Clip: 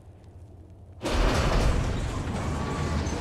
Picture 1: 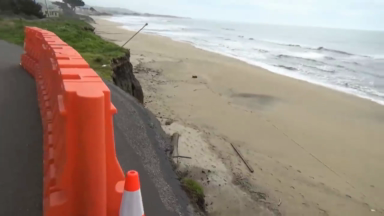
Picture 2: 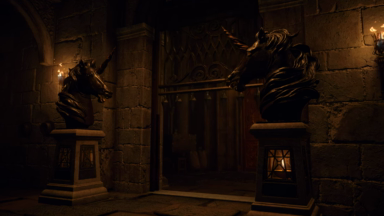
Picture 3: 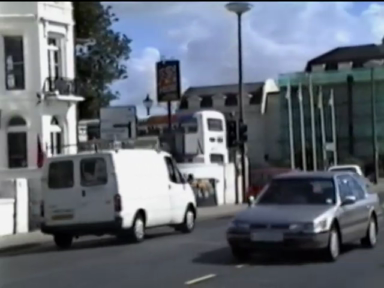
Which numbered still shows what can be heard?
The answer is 2